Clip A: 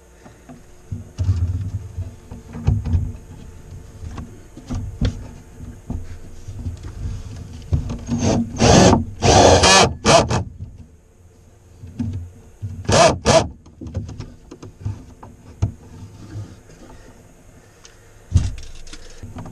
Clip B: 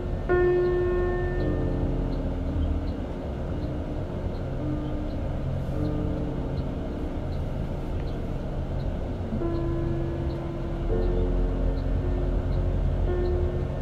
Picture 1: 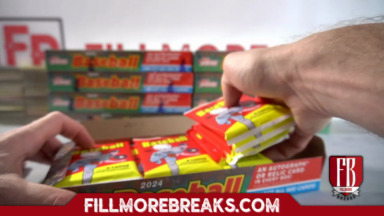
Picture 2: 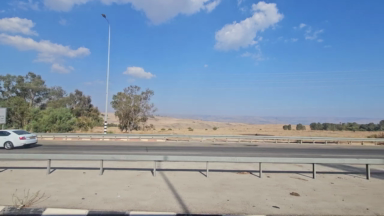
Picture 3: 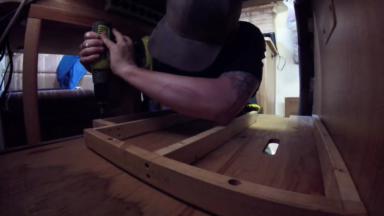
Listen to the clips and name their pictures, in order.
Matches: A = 3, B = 2